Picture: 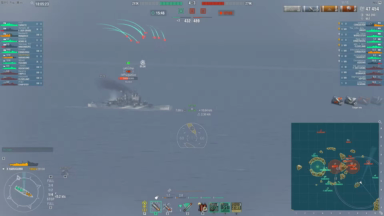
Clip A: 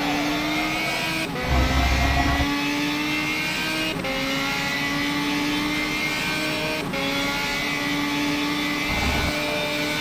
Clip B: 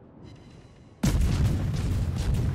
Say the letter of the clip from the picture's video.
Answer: B